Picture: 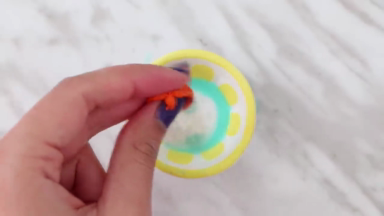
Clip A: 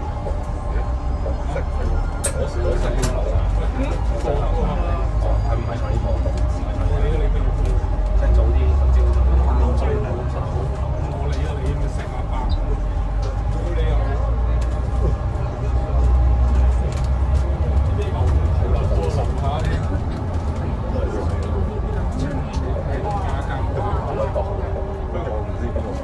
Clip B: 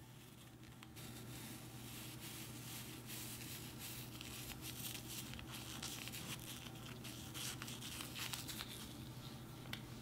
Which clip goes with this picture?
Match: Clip B